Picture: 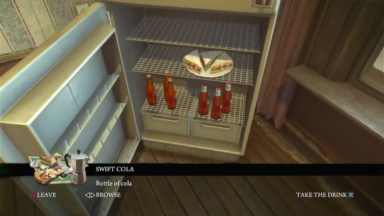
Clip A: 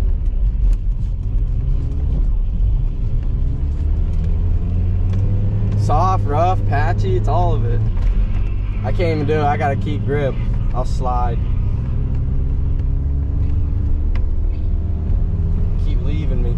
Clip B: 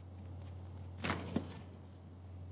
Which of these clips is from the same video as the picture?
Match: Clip B